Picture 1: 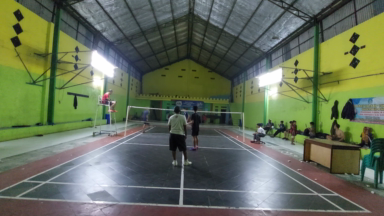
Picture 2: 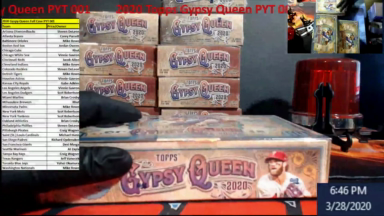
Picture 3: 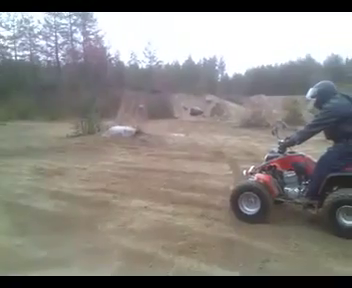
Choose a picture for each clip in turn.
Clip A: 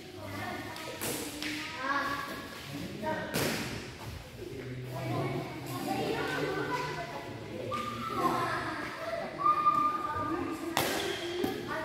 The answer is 1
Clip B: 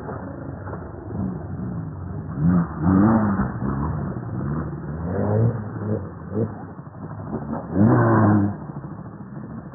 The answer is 3